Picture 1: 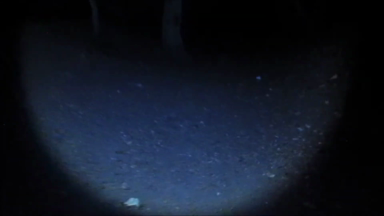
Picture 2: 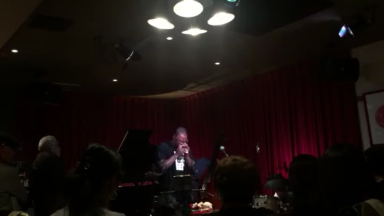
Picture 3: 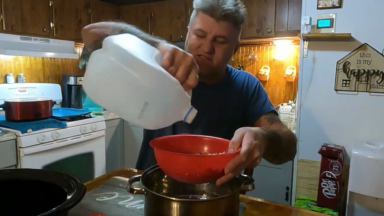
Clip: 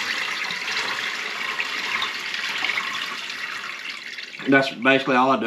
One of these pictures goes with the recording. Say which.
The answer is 3